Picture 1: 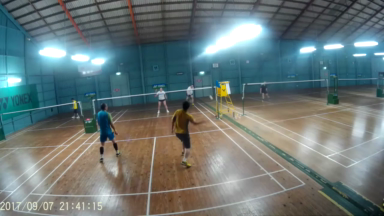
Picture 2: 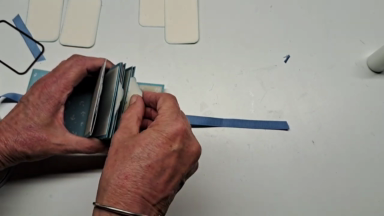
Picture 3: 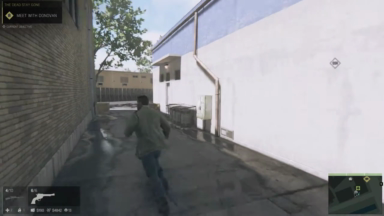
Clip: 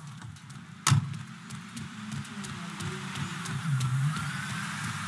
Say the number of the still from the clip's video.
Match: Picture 3